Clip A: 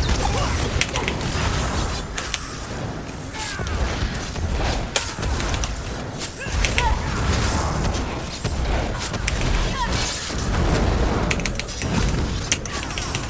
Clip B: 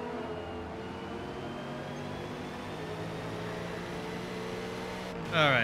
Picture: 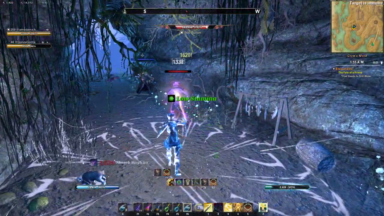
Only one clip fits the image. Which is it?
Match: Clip A